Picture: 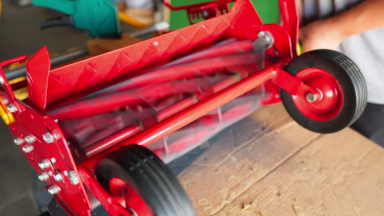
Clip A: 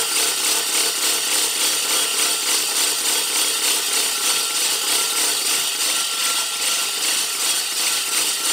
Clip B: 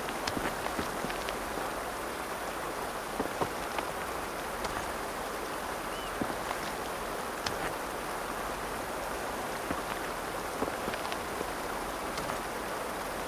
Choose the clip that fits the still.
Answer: A